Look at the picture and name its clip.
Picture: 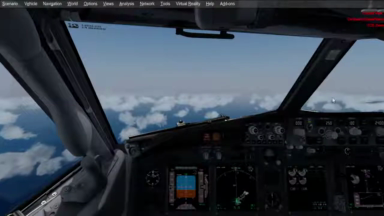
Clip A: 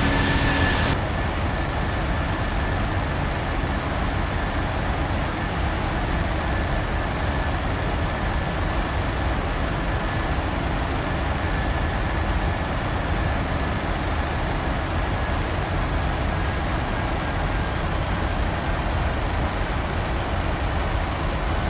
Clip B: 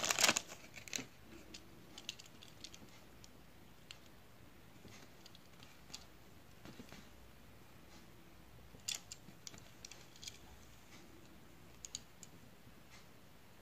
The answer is A